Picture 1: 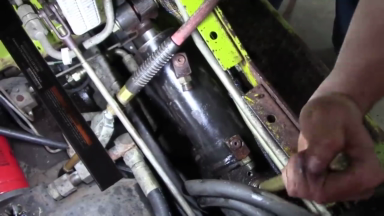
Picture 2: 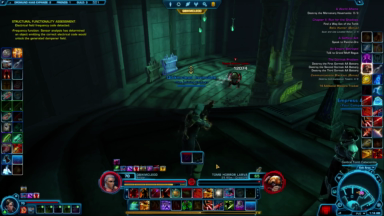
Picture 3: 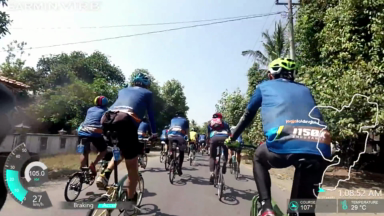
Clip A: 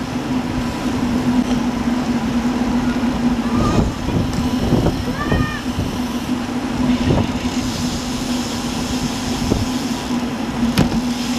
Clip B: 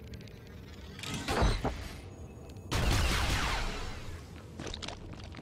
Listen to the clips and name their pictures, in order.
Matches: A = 3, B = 2